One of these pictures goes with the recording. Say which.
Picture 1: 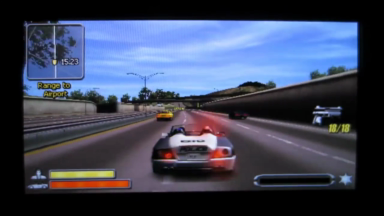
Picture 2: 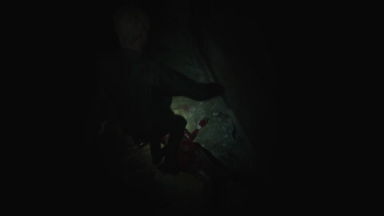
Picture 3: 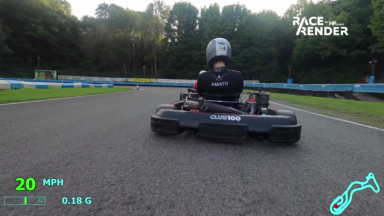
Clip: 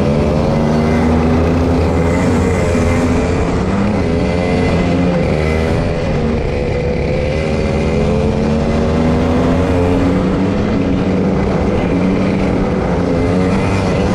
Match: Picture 3